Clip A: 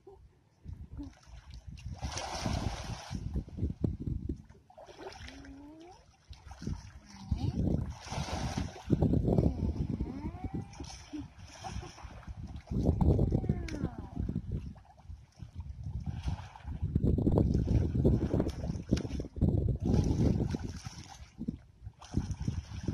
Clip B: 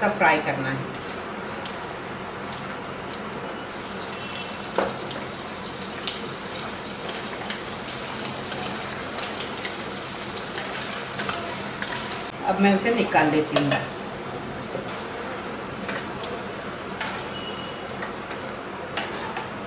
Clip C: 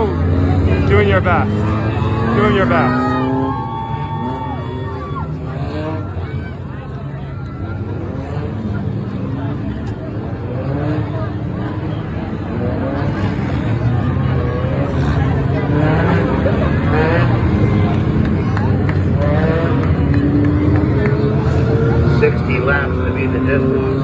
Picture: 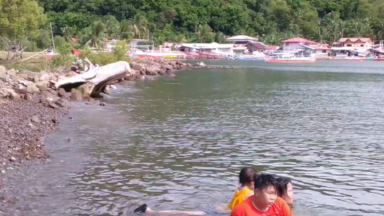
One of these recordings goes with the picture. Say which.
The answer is A